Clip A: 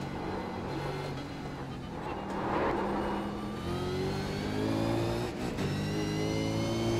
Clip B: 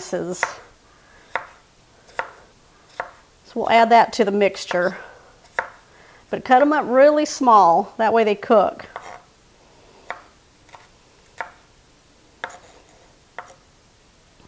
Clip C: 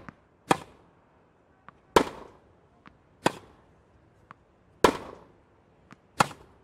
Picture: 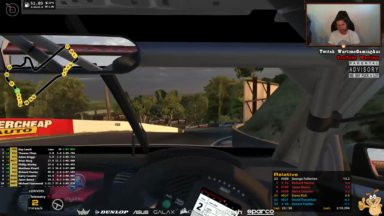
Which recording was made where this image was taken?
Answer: A